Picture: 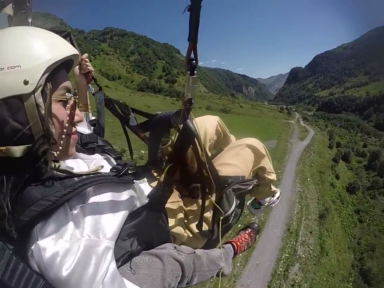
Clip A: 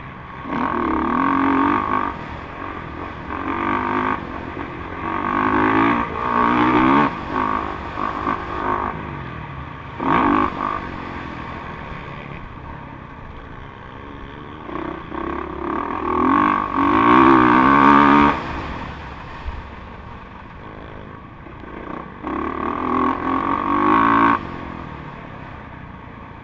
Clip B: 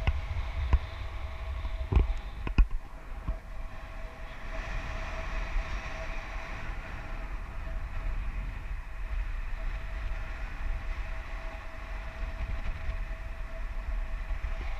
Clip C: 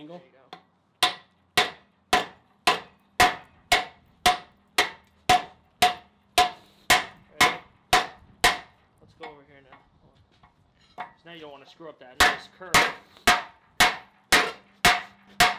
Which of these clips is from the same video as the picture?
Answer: B